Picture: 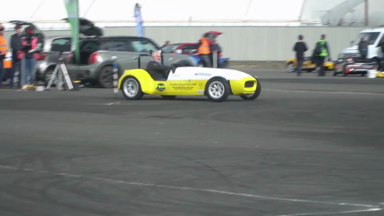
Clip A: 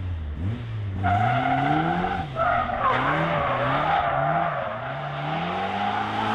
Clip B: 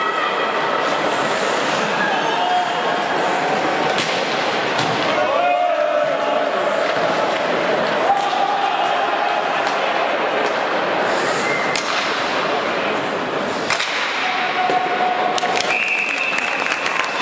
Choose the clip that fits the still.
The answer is A